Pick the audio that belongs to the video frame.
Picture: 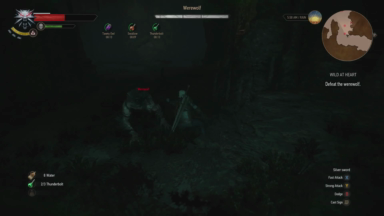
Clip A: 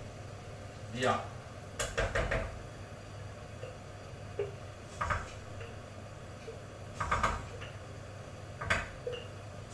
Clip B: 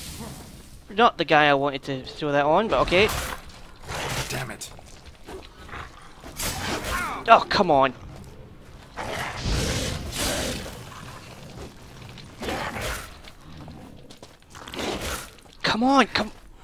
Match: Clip B